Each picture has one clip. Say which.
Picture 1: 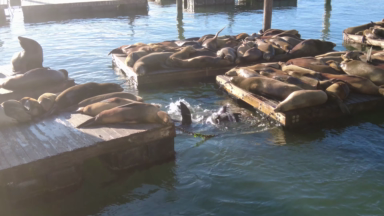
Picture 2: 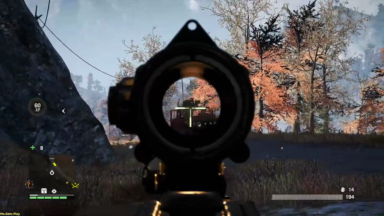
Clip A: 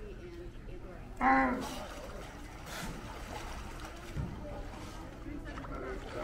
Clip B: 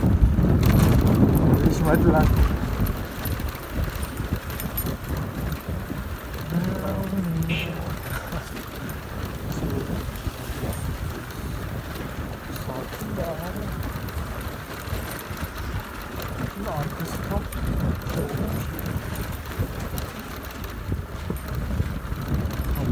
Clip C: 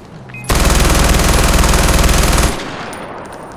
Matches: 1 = A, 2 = C